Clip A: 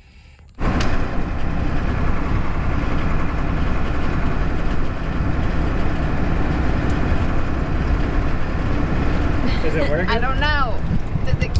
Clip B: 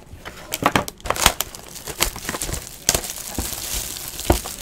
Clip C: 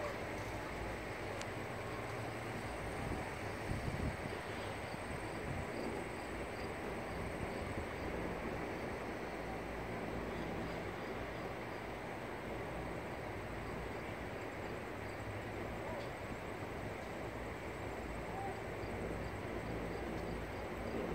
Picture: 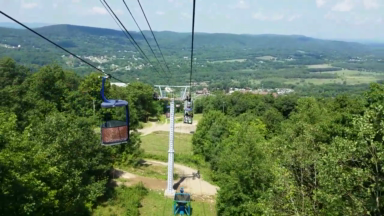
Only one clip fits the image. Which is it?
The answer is C